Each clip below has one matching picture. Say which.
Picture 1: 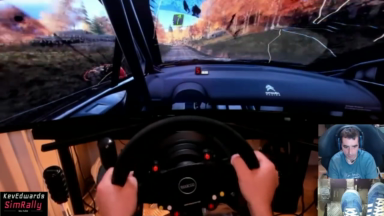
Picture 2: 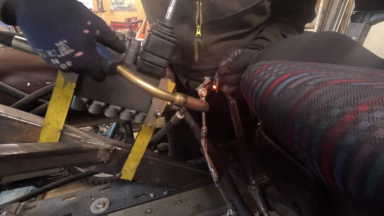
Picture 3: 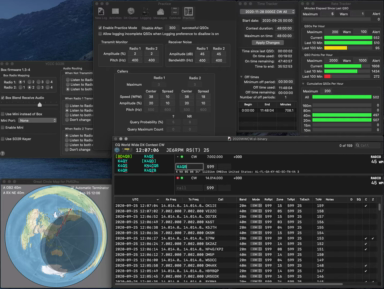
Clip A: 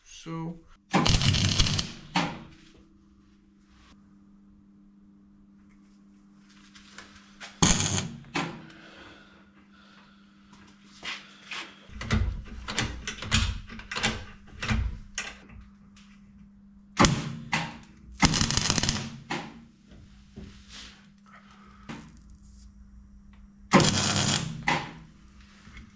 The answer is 2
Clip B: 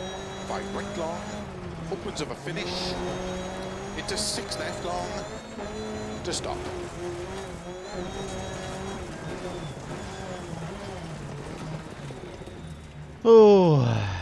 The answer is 1